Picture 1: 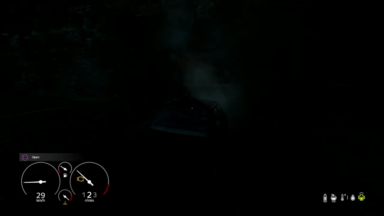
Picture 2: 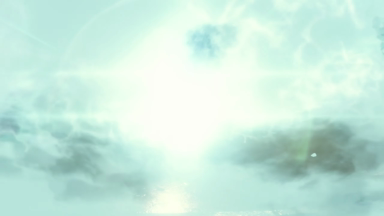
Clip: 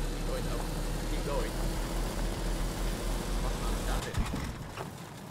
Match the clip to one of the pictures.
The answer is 1